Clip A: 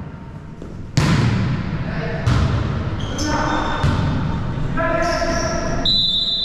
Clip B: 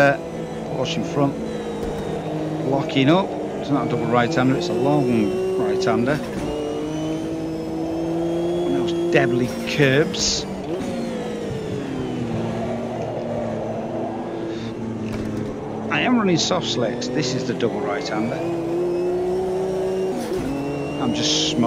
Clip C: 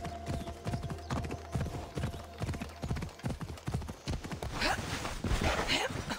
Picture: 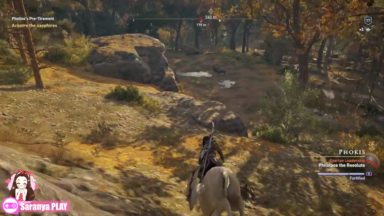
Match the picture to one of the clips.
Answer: C